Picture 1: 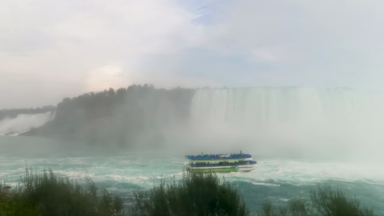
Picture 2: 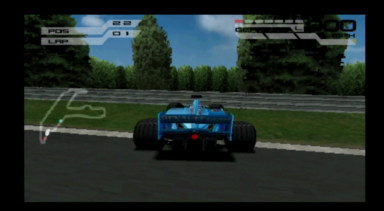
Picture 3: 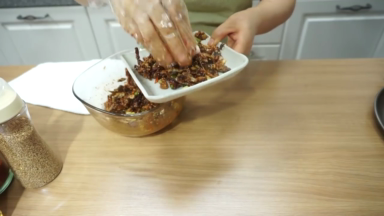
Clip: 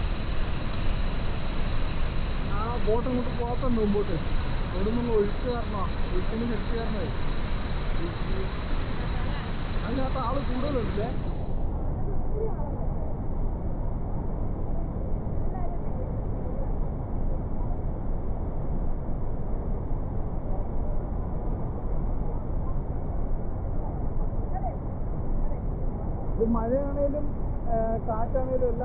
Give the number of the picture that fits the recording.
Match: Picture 1